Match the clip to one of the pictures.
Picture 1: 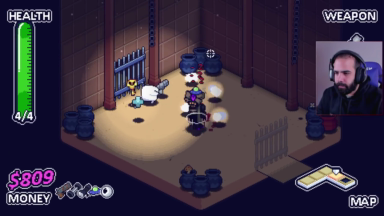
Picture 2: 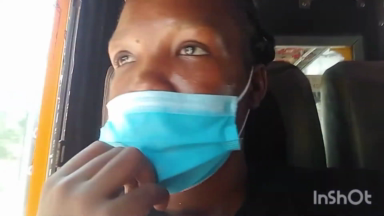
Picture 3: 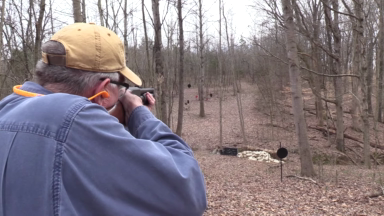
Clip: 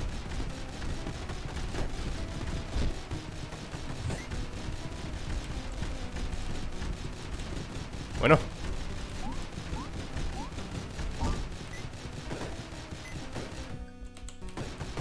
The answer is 1